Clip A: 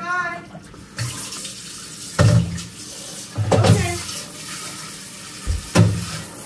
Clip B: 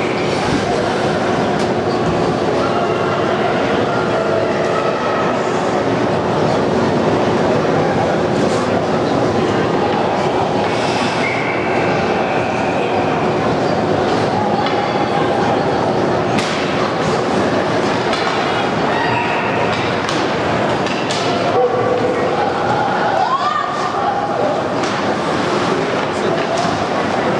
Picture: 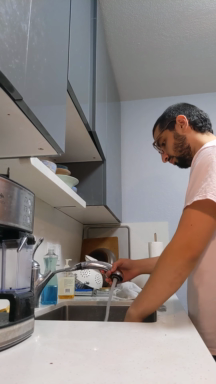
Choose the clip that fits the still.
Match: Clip A